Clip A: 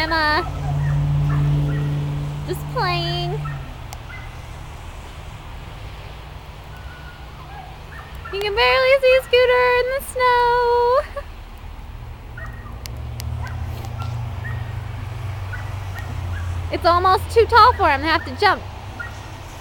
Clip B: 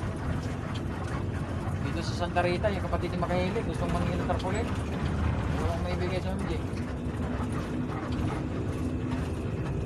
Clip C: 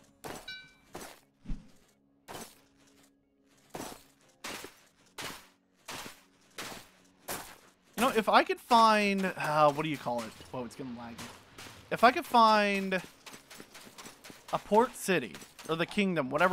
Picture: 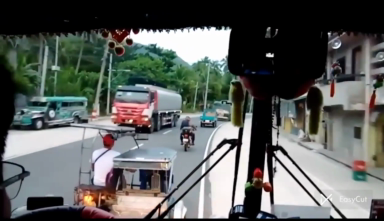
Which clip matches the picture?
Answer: B